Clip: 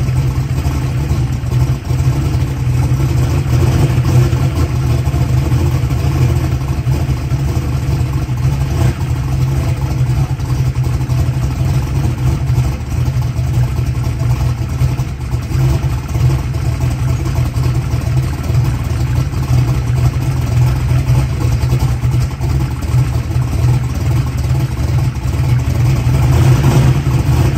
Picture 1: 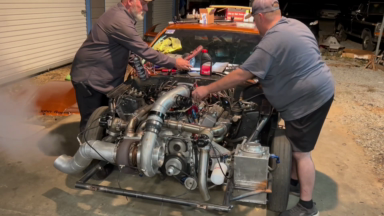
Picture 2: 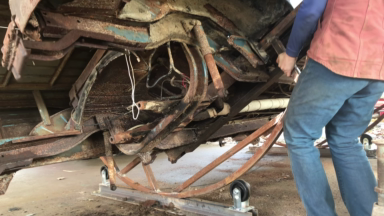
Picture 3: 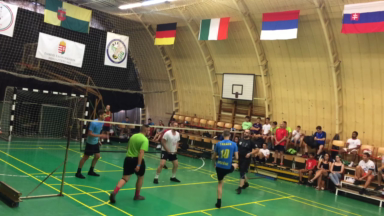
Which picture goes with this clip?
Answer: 1